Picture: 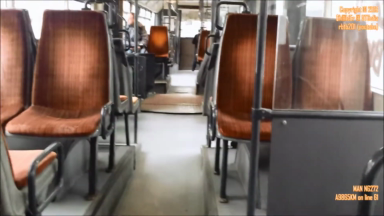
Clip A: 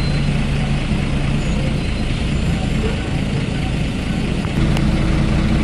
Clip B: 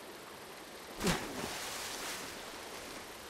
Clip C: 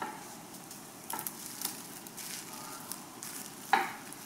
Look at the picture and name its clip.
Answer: A